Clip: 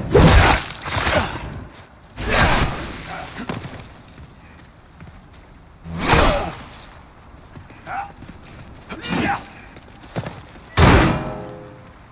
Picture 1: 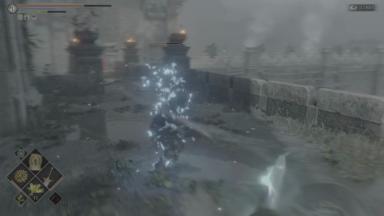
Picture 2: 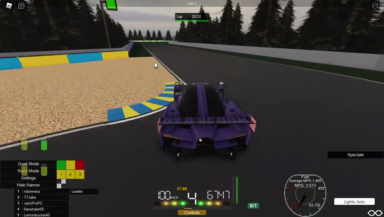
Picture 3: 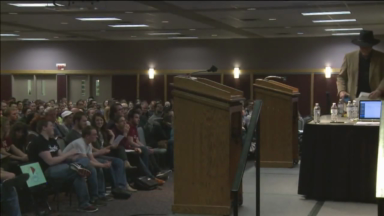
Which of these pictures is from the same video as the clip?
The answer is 1